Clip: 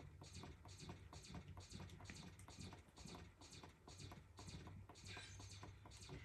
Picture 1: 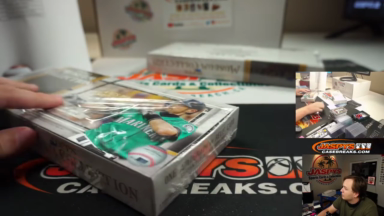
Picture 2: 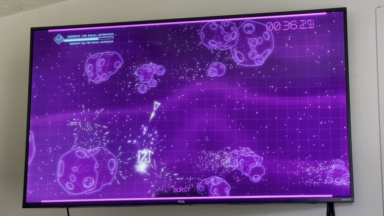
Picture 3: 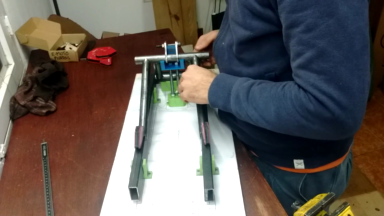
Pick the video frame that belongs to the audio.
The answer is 2